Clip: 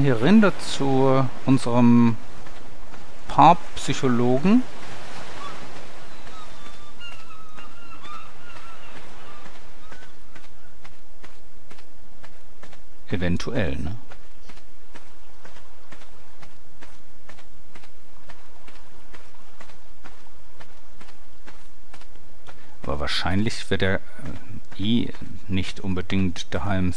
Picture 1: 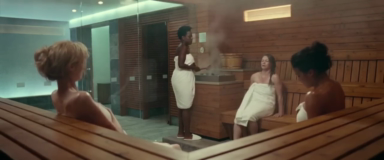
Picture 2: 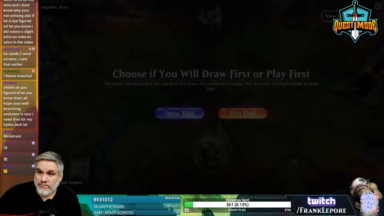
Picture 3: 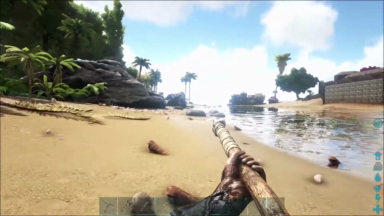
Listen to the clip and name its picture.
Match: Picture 3